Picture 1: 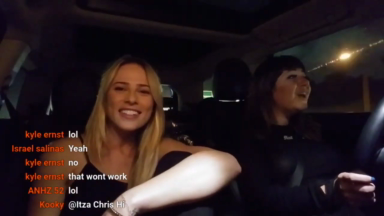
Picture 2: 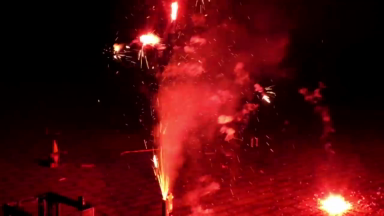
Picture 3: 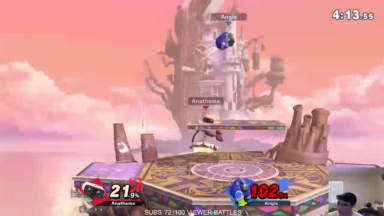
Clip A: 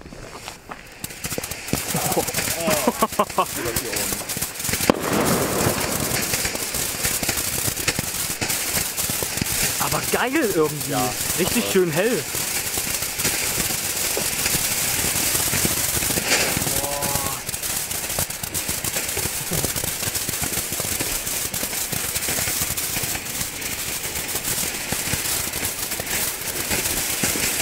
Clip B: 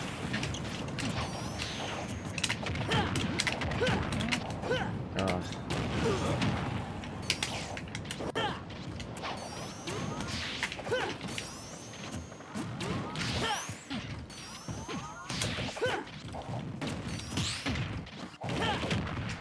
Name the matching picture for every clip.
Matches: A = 2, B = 3